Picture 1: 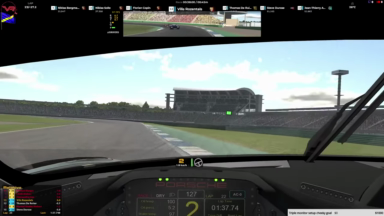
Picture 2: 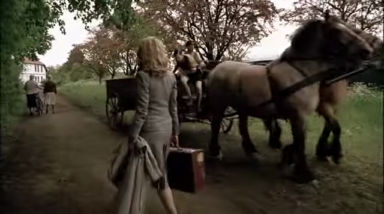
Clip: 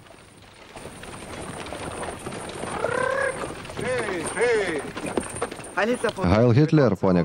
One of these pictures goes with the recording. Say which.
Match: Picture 2